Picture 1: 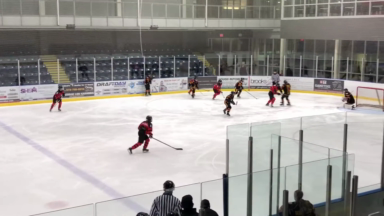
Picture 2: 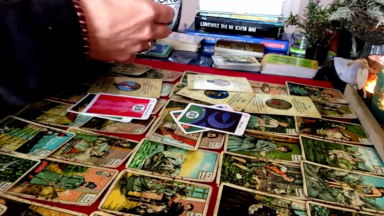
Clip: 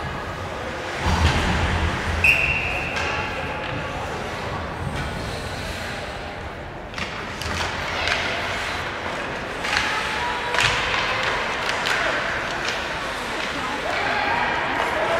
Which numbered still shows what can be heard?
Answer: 1